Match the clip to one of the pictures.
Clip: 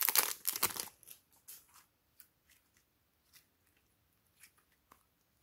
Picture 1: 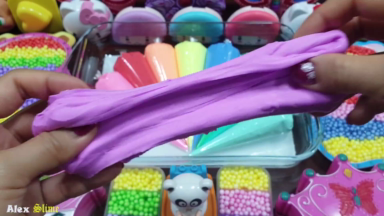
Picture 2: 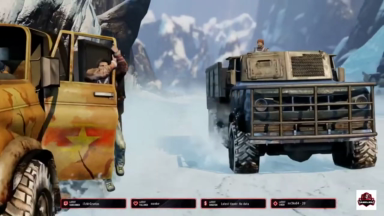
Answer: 1